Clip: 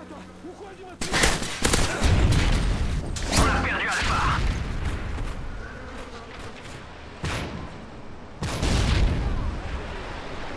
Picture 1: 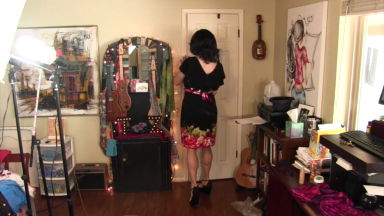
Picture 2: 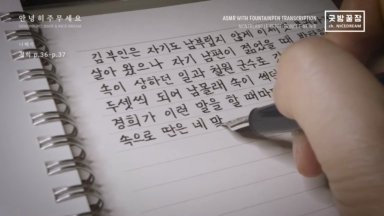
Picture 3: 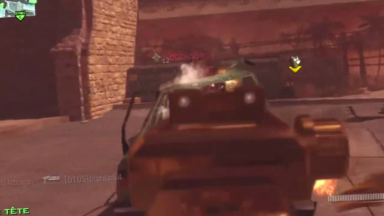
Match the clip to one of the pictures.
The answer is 3